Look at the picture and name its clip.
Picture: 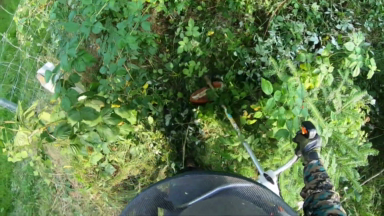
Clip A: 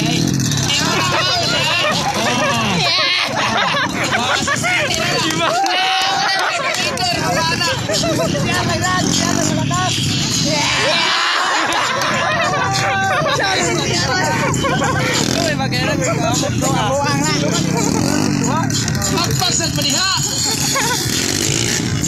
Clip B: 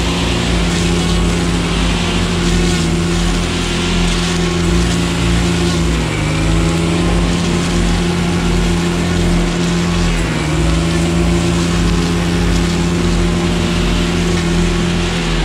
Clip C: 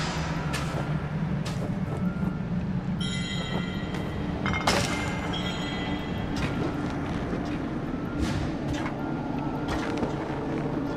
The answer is B